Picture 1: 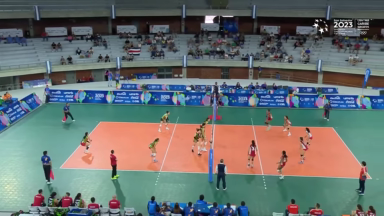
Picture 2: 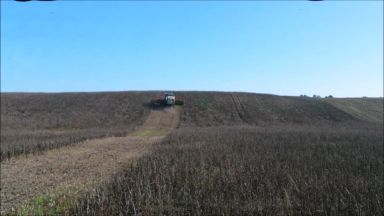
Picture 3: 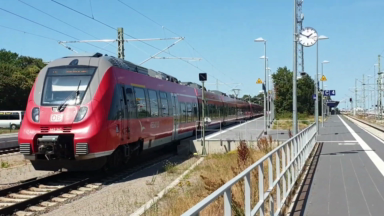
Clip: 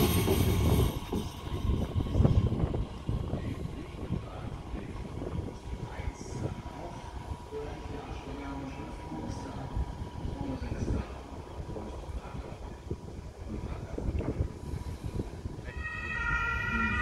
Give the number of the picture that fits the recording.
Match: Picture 3